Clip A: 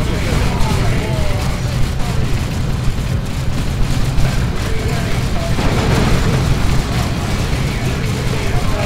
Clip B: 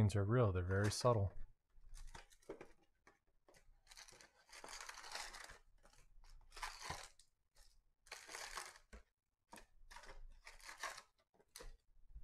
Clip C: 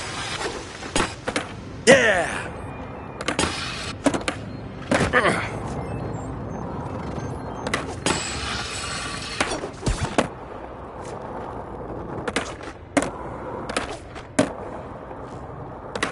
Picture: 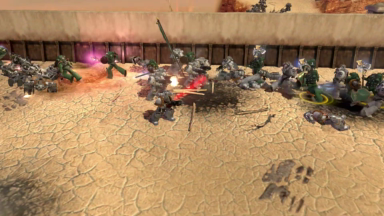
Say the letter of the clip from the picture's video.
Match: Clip A